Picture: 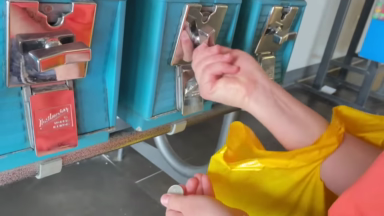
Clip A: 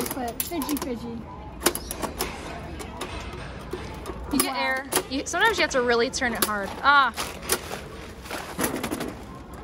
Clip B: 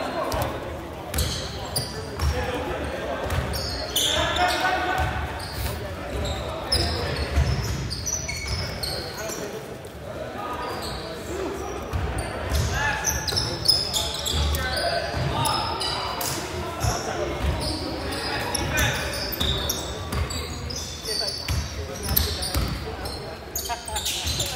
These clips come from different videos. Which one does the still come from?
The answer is A